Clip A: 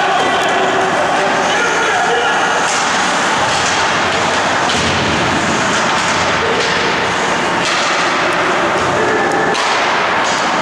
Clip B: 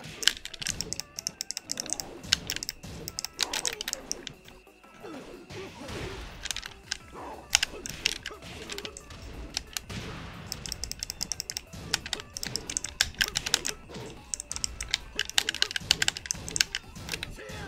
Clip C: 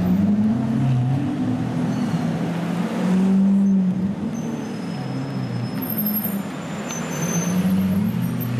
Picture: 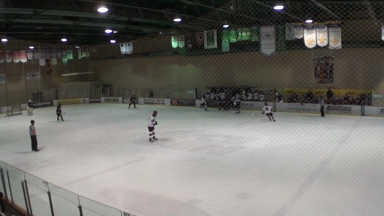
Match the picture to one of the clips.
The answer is A